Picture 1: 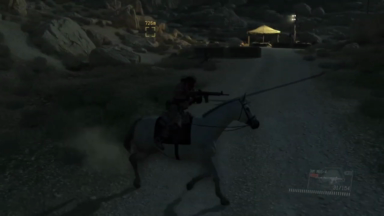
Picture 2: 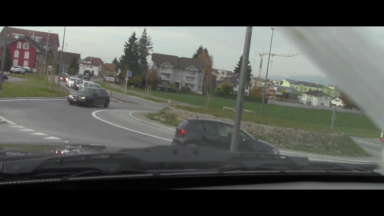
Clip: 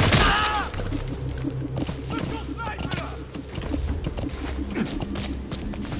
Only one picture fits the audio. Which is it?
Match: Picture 1